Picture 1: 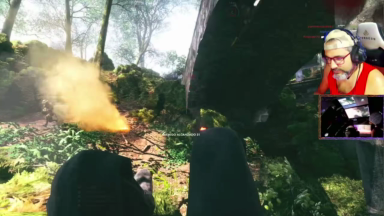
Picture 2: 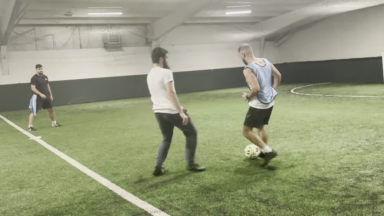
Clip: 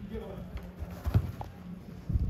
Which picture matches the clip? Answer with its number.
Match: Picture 2